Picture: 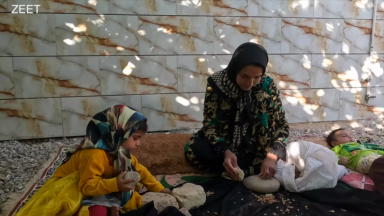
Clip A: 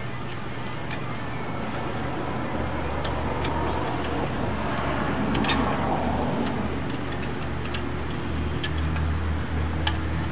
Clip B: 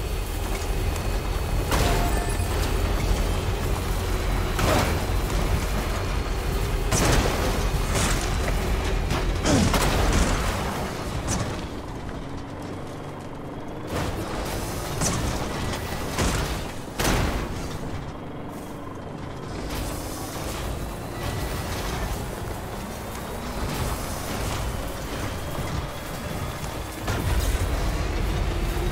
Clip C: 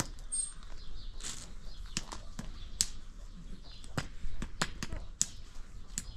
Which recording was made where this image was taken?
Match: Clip C